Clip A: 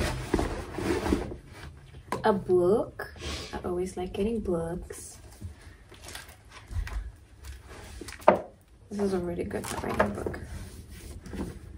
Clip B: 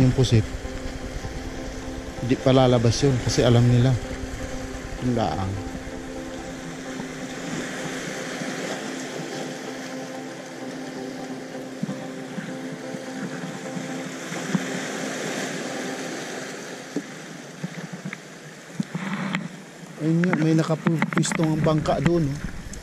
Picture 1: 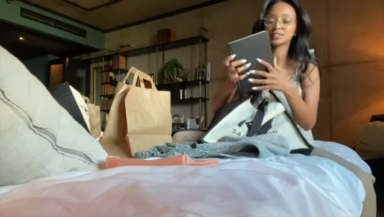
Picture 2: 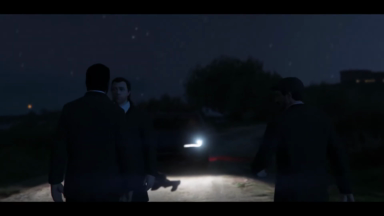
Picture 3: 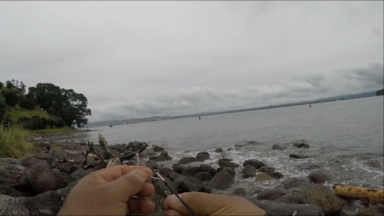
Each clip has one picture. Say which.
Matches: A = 1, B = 3